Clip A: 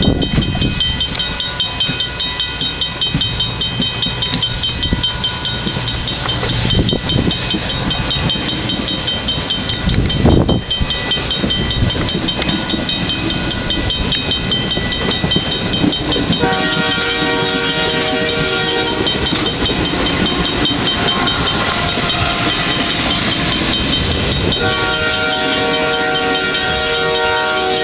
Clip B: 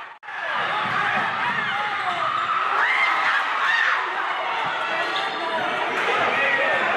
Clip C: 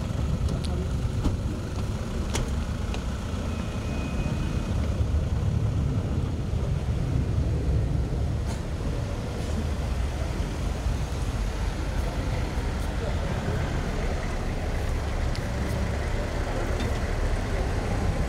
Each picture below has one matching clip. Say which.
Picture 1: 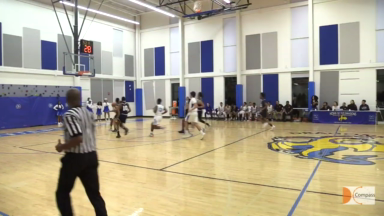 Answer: B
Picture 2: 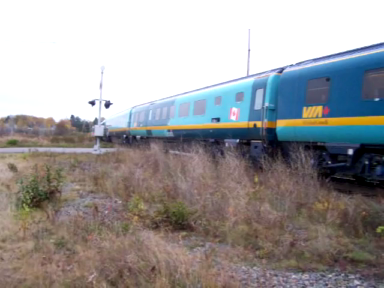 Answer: A